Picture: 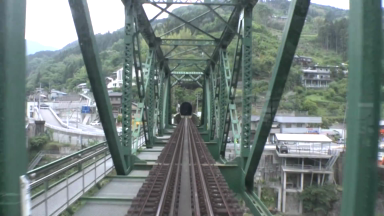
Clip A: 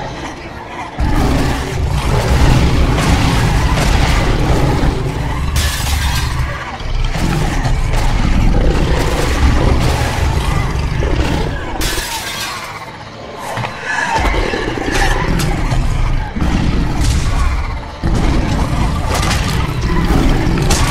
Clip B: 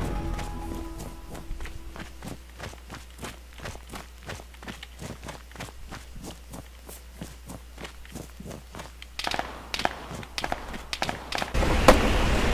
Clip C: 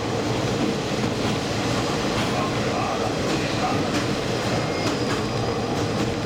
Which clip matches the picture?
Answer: C